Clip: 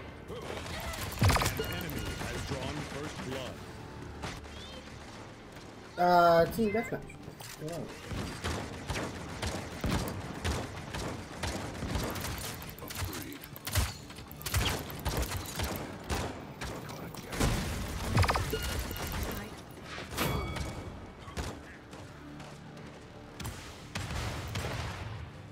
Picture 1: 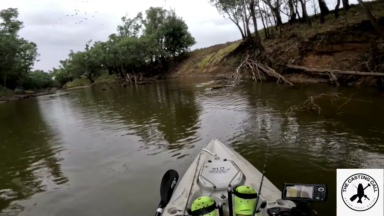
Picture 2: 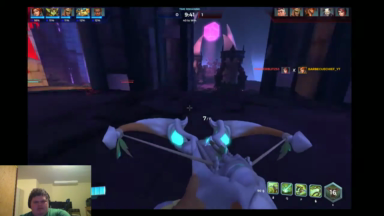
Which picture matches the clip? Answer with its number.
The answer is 2